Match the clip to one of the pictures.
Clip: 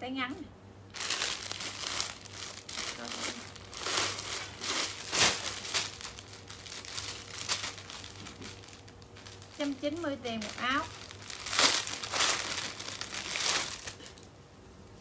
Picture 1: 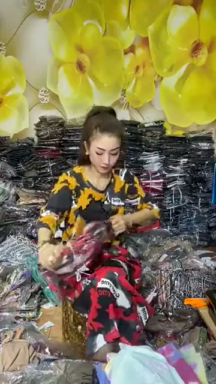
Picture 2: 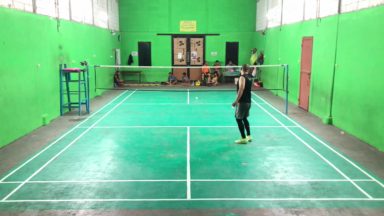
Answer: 1